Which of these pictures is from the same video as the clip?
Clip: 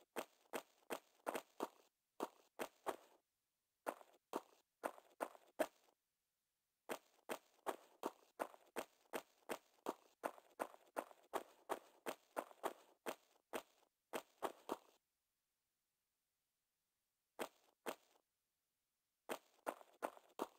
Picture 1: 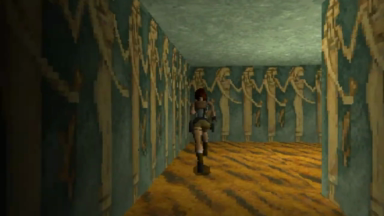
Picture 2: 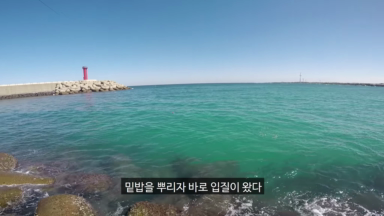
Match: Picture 1